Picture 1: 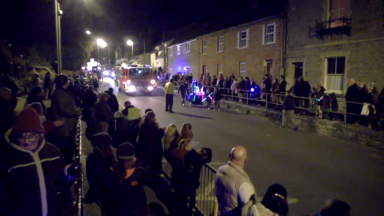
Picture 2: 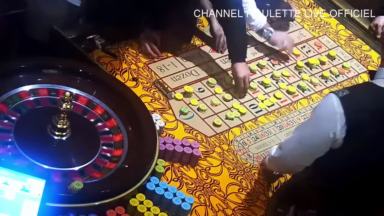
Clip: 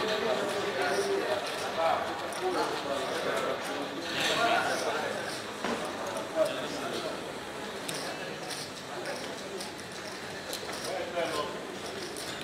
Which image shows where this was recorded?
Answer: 2